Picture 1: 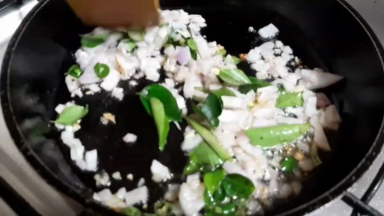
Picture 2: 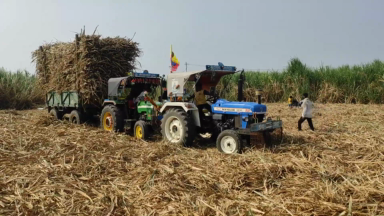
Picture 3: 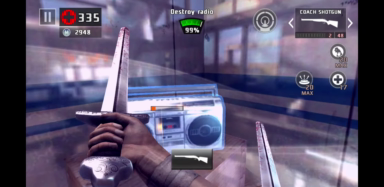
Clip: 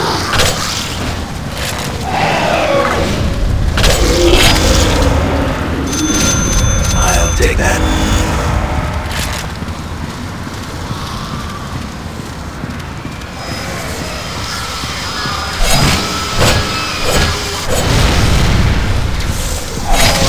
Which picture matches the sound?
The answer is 3